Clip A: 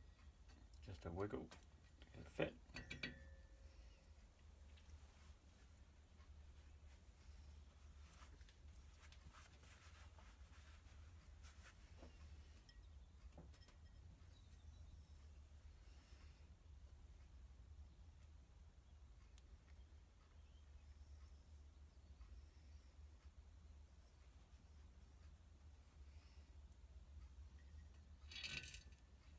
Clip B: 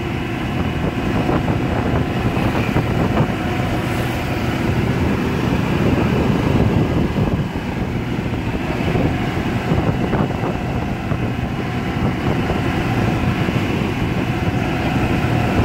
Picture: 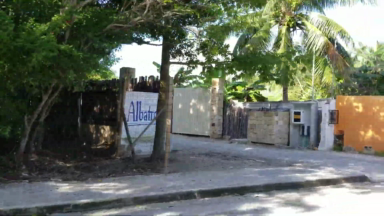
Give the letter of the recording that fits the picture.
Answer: B